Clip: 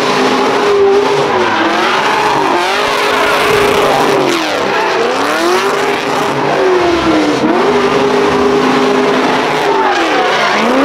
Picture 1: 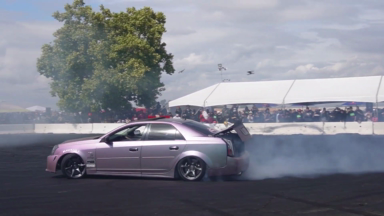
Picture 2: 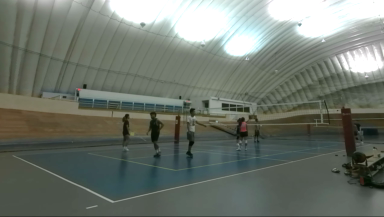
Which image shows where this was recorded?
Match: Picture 1